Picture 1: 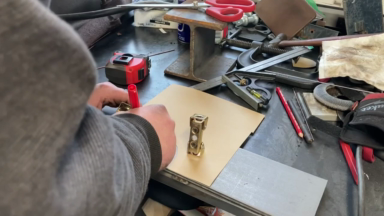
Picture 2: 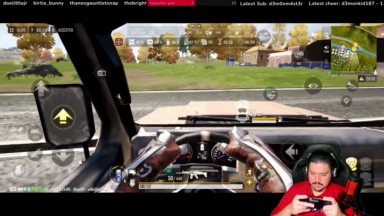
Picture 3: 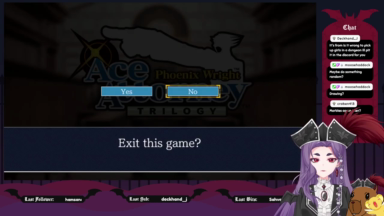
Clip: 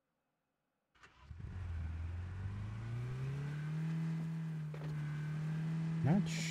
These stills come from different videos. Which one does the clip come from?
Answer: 2